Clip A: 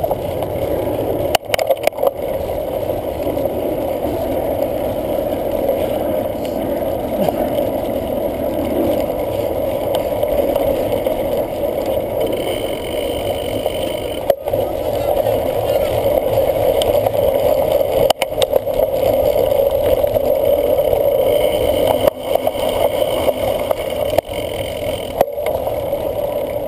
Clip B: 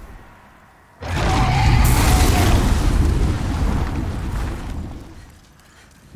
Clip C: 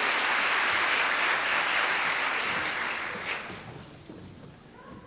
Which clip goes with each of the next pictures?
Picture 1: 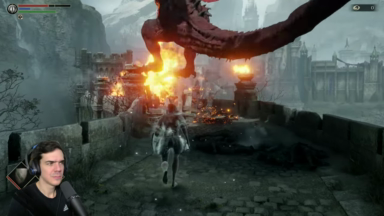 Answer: B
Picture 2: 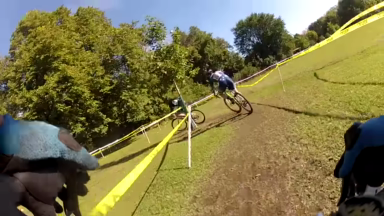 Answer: A